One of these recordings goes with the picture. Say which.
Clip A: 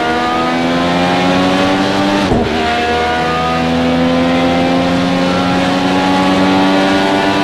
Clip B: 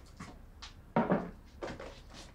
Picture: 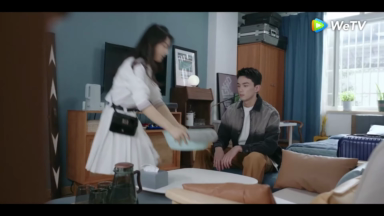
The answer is B